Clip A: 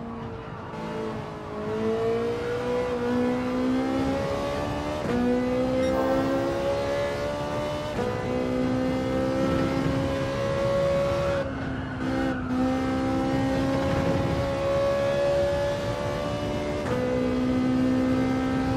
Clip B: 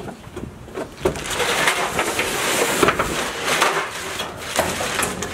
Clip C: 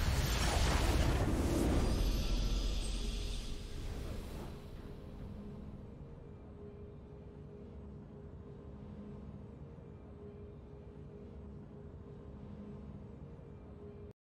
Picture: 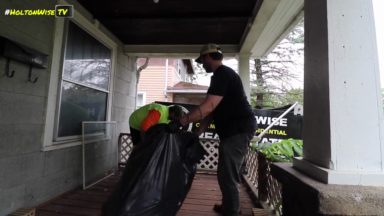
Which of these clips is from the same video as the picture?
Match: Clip B